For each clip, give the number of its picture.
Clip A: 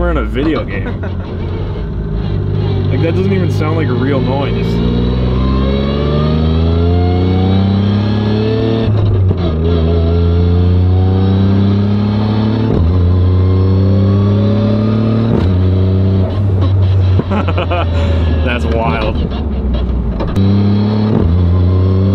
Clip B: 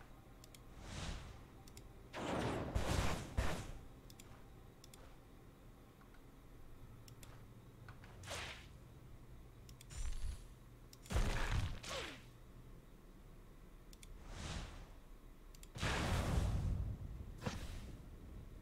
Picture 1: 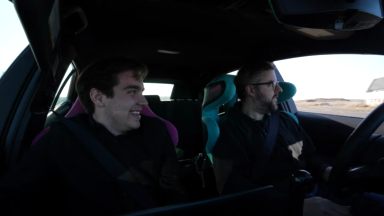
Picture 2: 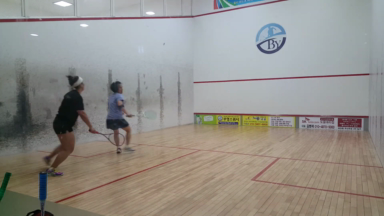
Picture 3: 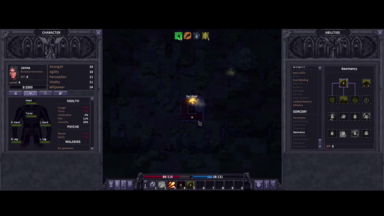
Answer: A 1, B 3